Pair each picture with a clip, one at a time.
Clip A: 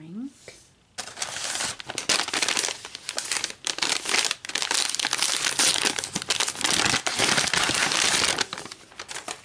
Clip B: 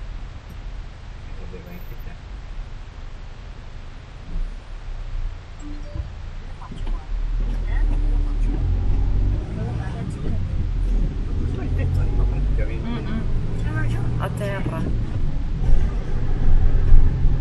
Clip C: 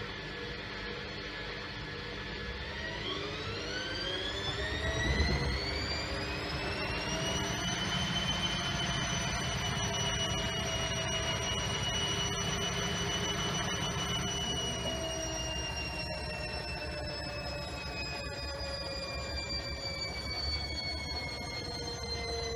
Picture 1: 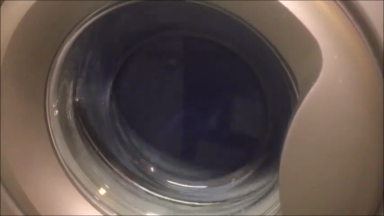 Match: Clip C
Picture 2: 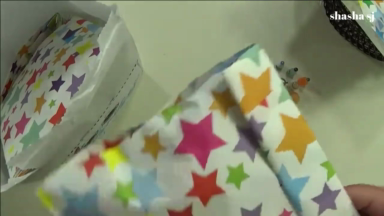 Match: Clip A